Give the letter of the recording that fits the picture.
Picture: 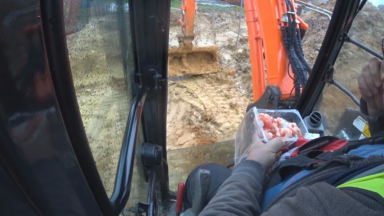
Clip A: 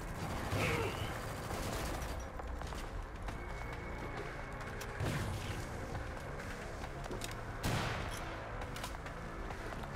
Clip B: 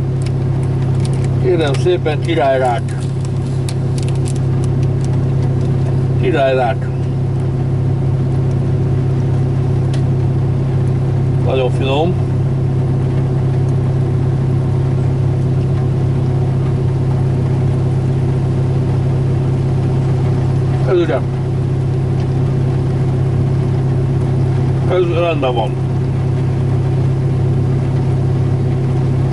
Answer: B